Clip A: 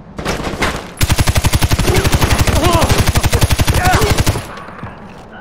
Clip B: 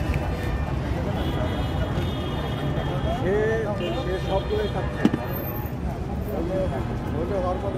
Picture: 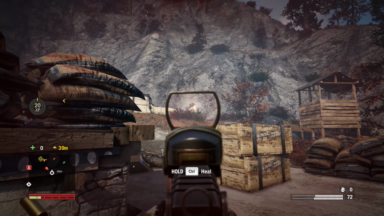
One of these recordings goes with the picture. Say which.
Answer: A